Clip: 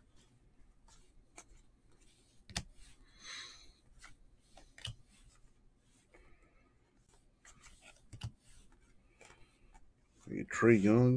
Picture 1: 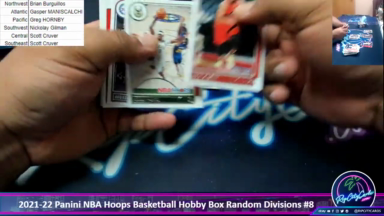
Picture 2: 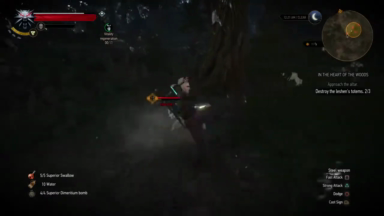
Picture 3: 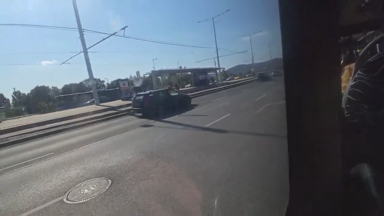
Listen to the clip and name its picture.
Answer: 1